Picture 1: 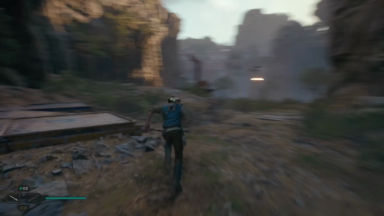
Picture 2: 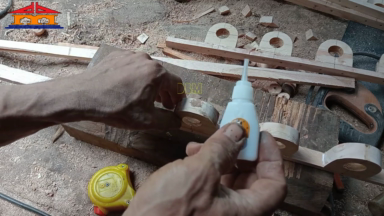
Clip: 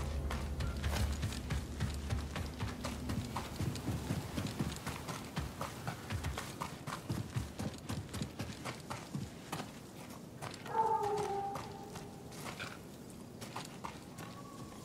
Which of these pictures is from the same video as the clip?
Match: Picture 1